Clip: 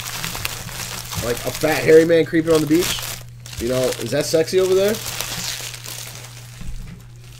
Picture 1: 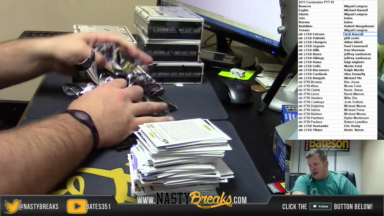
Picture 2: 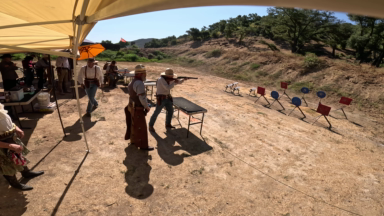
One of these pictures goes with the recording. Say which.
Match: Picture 1